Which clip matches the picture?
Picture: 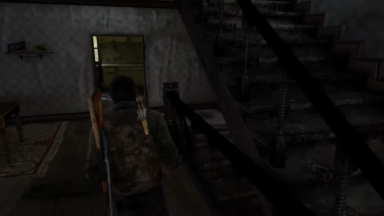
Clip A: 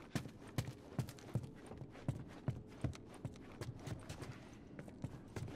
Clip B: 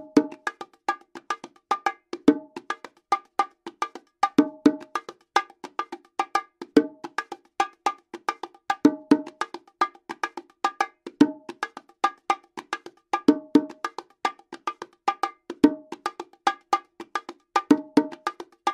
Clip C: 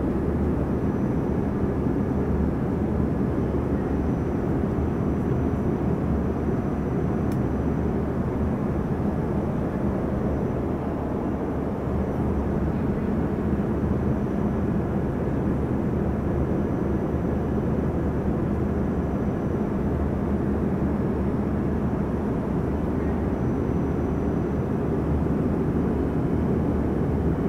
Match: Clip A